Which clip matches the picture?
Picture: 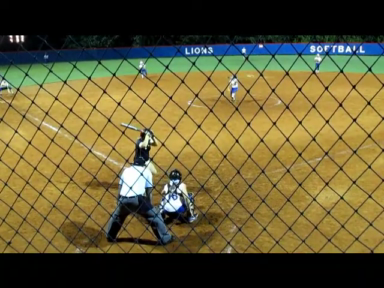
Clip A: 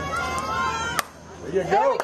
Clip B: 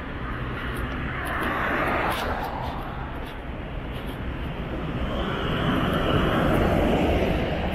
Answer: A